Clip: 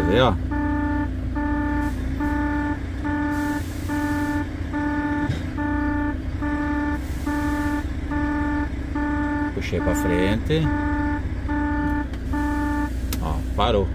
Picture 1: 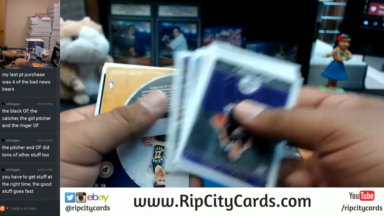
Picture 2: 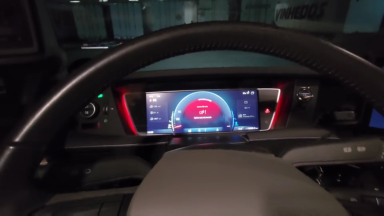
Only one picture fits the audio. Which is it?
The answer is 2